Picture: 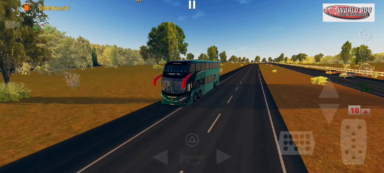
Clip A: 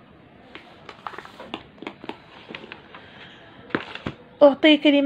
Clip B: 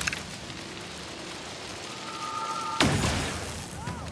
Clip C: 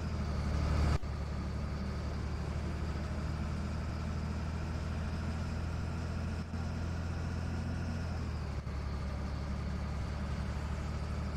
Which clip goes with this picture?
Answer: C